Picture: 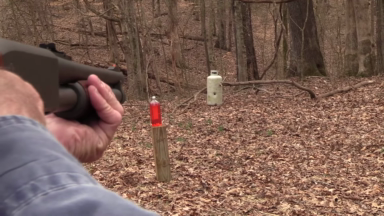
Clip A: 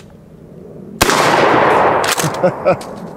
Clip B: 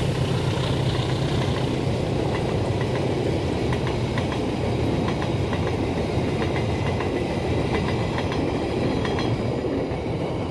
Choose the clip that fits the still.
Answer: A